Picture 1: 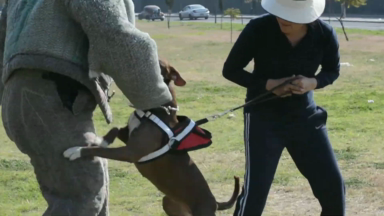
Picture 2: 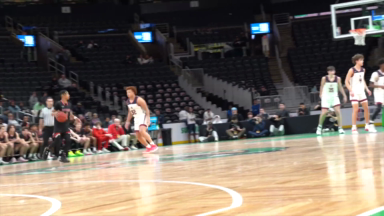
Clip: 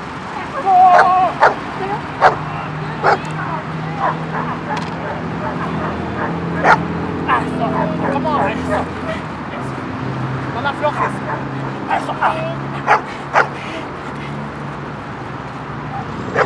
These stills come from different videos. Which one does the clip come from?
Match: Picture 1